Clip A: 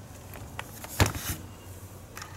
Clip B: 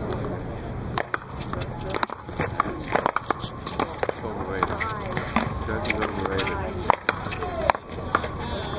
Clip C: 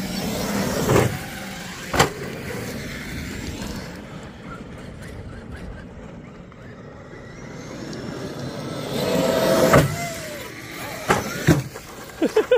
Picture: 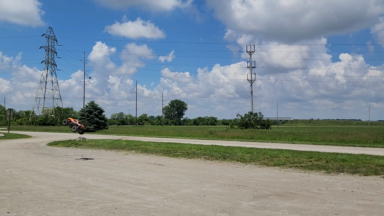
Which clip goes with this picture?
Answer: C